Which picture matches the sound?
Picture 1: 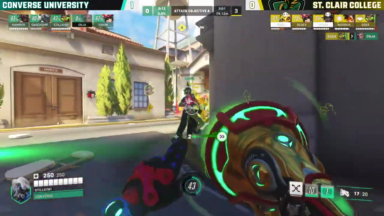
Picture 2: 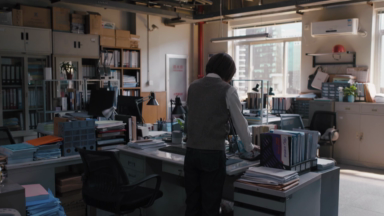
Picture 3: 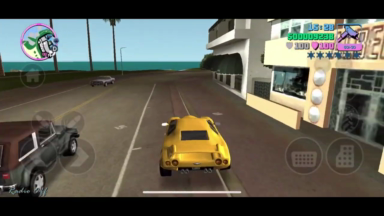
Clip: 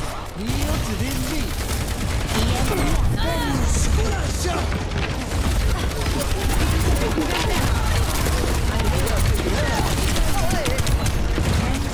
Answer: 1